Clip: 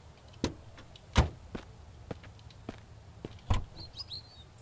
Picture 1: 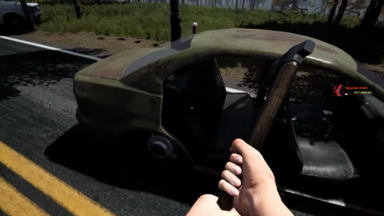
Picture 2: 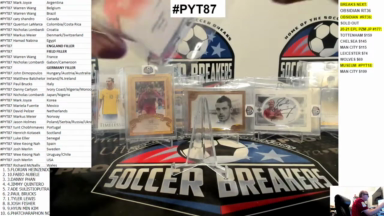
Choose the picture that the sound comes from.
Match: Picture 1